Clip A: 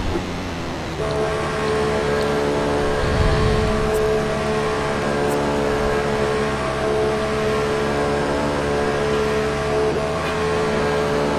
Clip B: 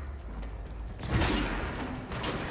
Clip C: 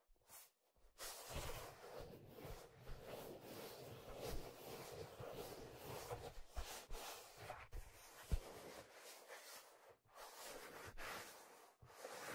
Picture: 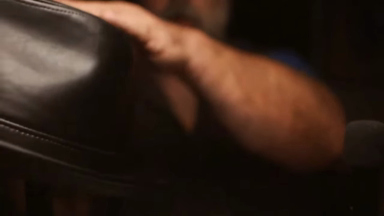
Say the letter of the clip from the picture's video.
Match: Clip C